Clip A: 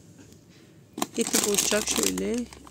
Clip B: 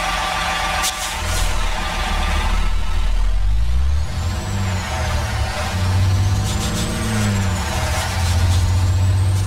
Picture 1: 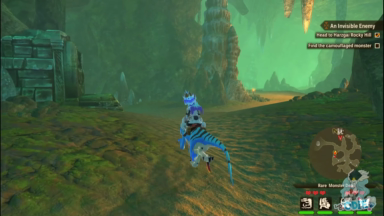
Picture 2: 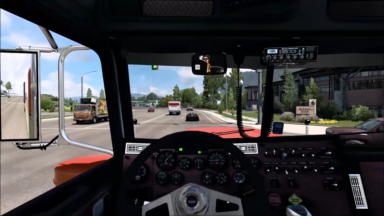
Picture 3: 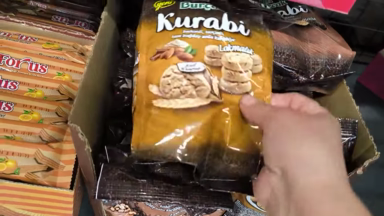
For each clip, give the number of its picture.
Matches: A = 3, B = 2